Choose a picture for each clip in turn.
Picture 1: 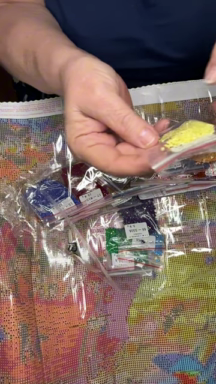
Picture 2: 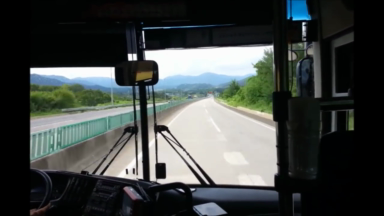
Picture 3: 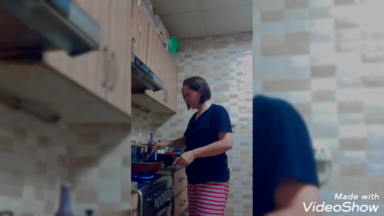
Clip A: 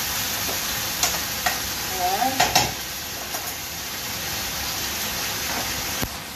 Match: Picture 3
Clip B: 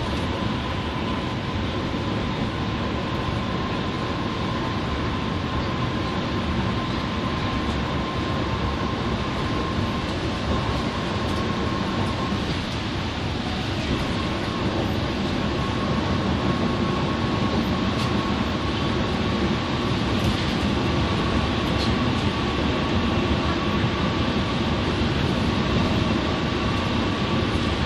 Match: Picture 2